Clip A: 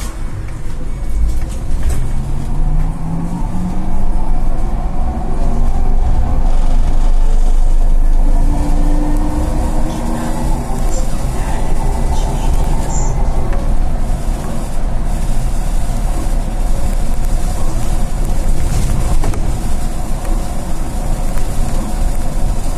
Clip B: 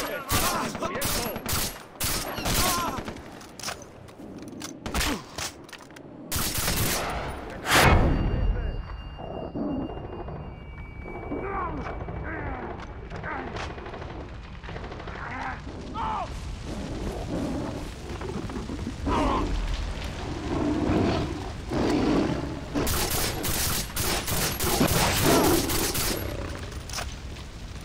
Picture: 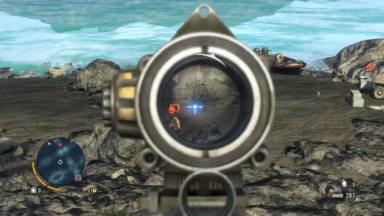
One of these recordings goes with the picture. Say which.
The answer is B